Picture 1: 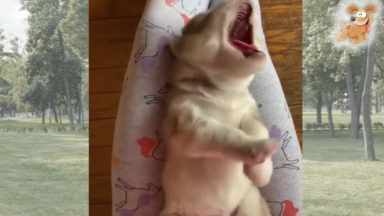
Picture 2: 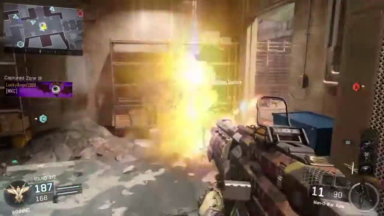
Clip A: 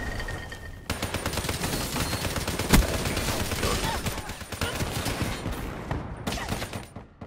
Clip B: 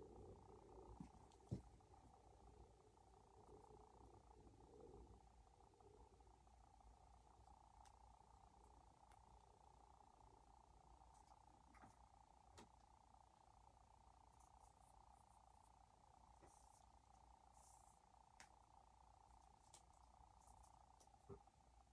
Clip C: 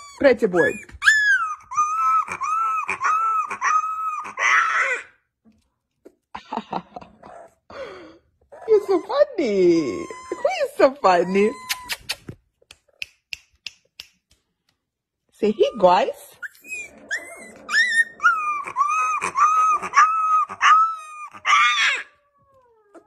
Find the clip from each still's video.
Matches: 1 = C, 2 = A